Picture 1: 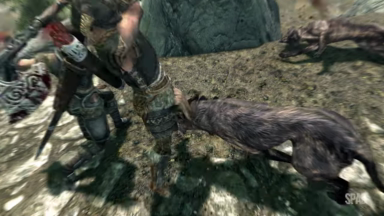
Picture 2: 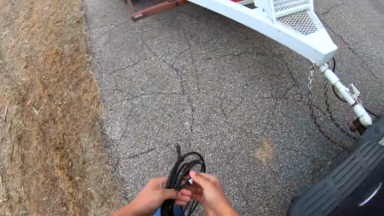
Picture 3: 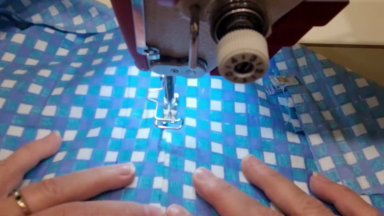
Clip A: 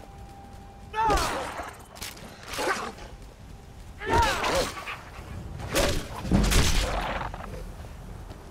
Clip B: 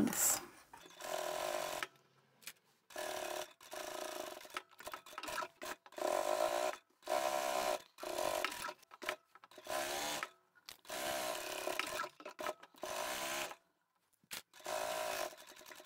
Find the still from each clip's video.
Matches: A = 1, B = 3